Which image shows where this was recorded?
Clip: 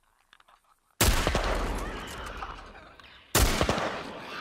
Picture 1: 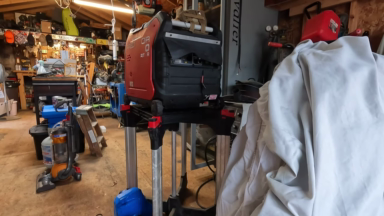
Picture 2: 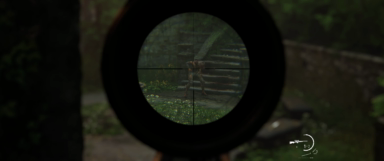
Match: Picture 2